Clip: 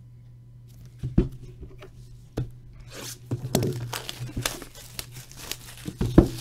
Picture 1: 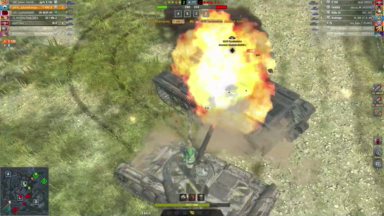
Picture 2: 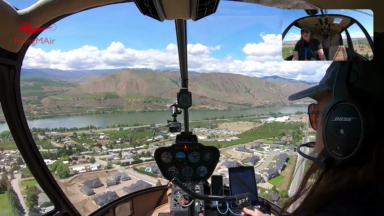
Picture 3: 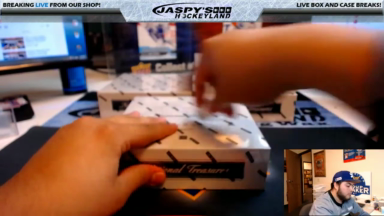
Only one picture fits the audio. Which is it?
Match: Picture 3